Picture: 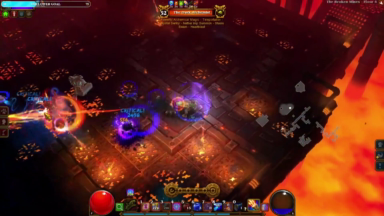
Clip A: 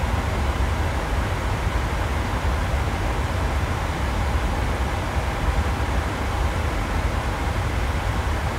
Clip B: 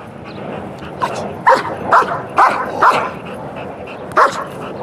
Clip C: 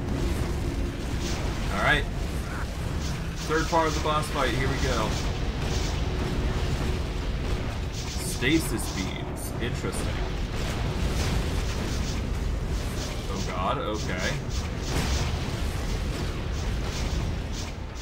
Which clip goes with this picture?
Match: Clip C